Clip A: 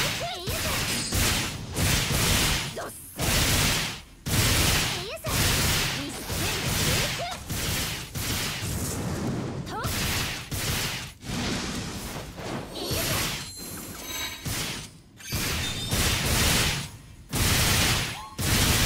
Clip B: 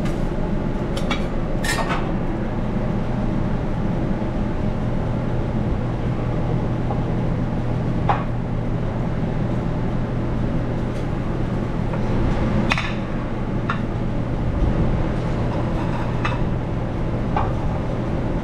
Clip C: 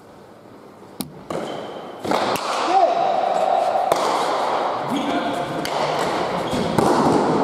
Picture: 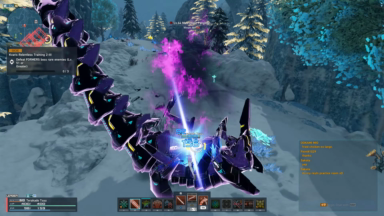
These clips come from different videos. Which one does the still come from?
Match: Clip A